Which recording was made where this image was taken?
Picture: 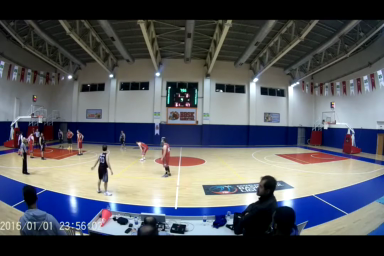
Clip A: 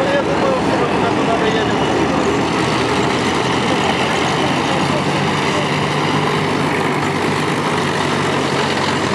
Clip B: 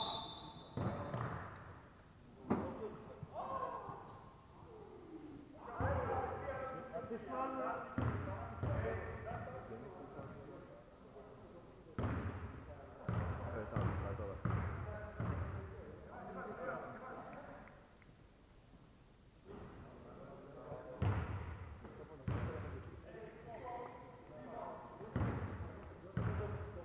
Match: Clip B